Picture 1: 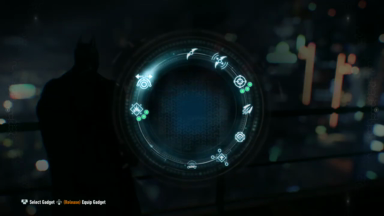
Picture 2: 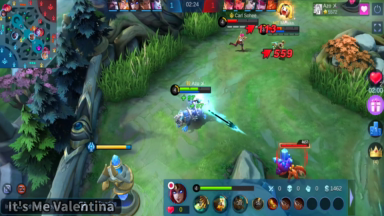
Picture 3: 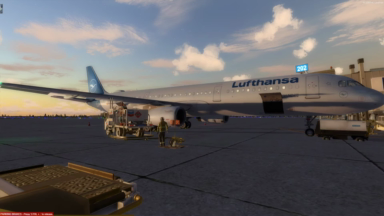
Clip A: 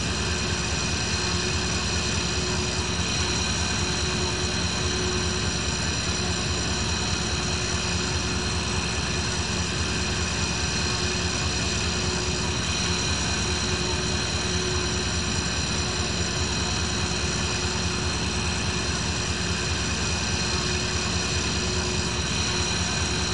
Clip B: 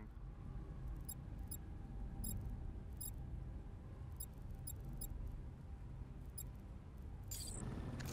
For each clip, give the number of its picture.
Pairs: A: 3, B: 1